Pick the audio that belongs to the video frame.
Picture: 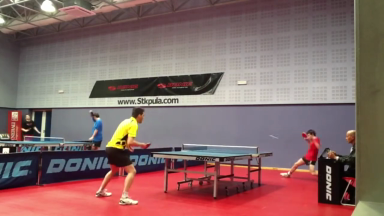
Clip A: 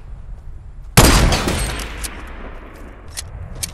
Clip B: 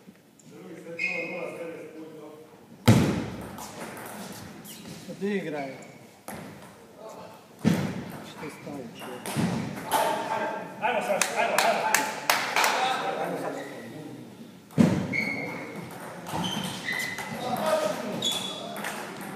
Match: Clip B